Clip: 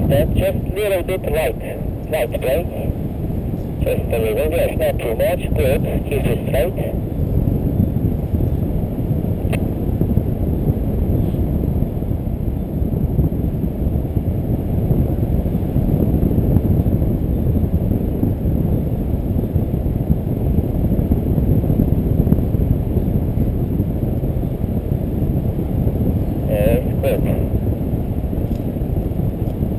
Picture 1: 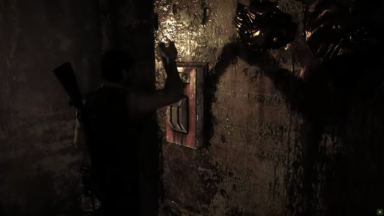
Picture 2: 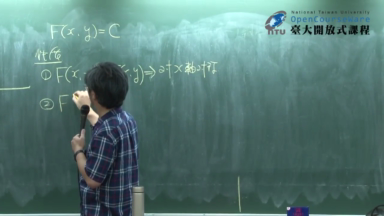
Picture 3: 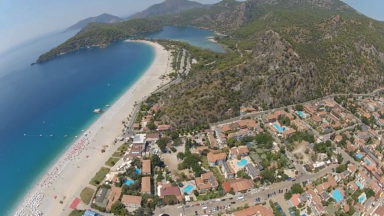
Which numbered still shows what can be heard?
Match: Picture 3